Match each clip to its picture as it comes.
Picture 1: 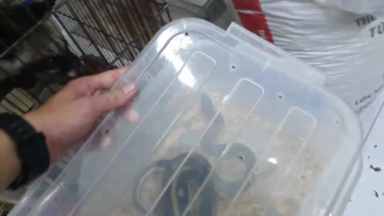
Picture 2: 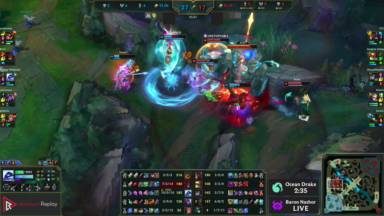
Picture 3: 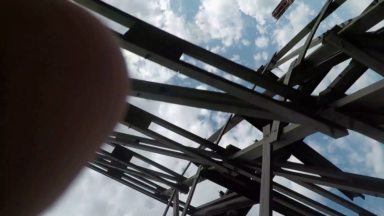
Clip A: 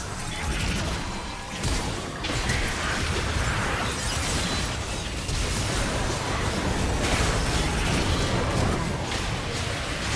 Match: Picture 2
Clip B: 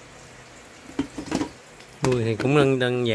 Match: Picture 1